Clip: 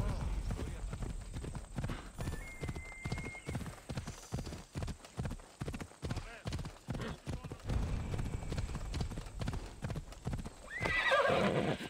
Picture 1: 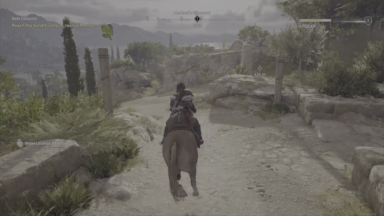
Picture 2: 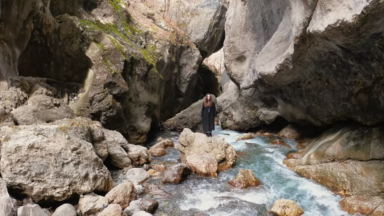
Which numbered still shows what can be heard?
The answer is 1